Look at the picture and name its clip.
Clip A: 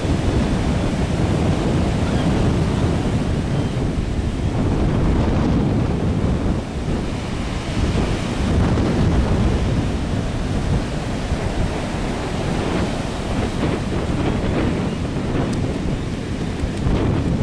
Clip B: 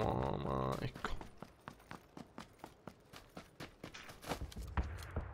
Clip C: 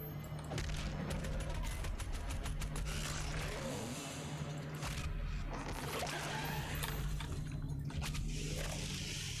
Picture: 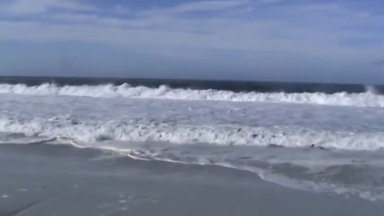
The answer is A